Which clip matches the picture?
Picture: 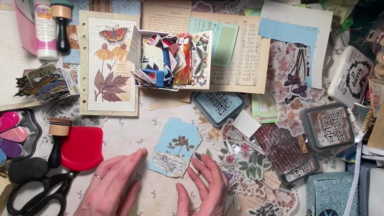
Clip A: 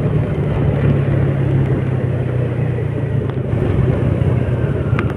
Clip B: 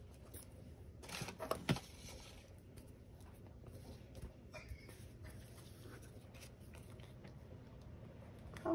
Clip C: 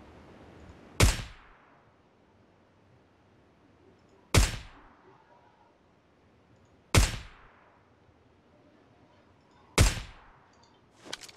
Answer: B